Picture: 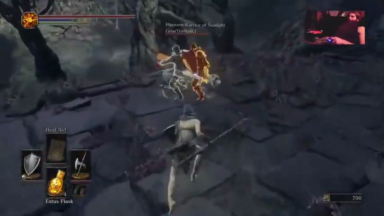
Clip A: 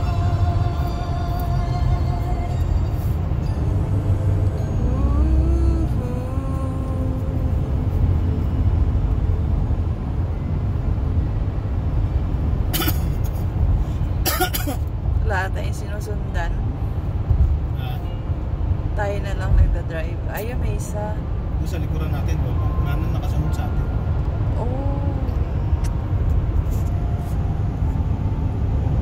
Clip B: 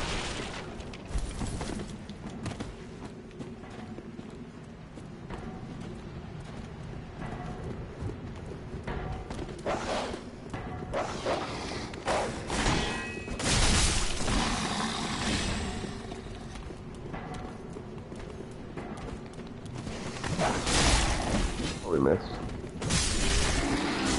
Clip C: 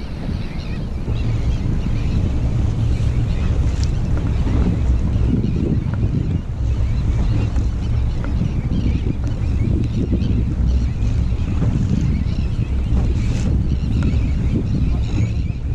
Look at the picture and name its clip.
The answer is B